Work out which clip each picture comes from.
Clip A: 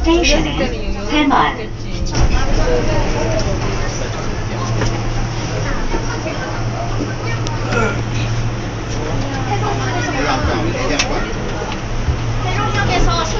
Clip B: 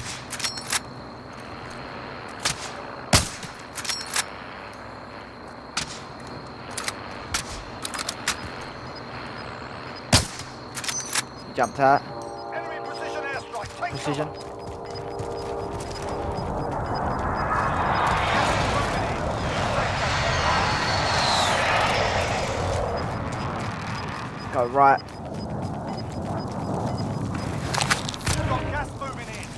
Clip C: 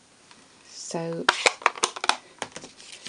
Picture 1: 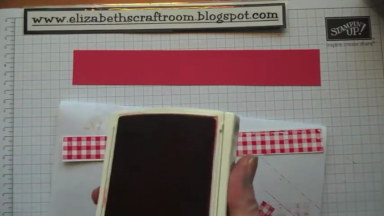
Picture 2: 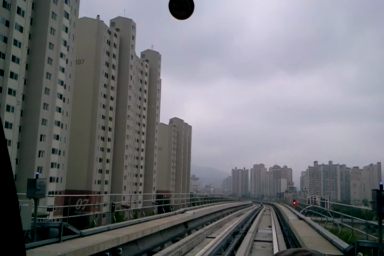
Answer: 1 C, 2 A